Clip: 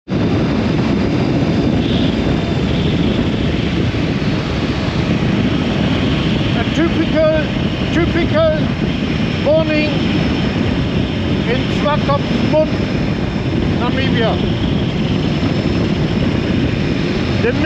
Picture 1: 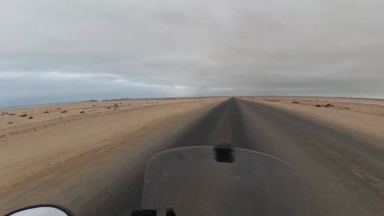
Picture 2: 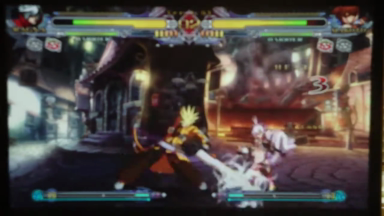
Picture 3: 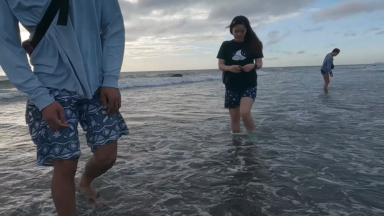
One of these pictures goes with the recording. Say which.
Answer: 1